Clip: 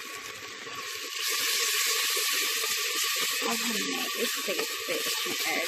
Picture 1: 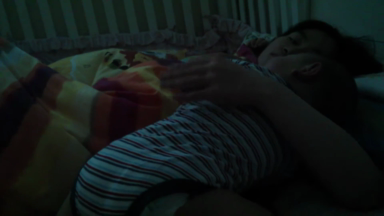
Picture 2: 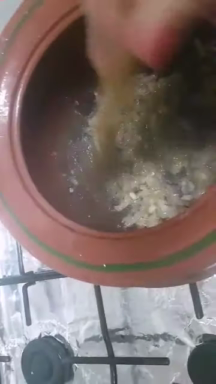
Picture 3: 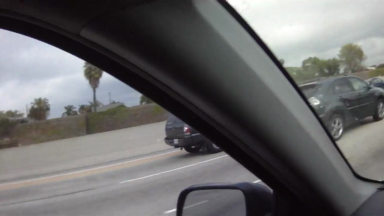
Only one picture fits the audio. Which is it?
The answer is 2